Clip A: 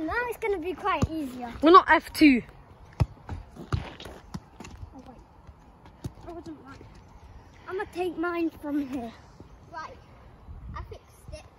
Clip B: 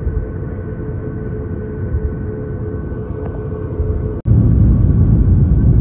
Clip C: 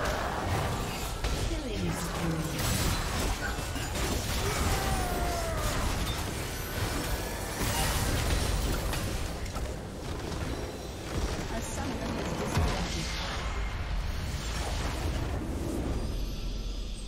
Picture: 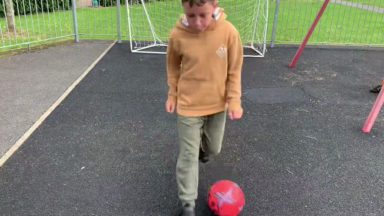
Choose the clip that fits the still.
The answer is A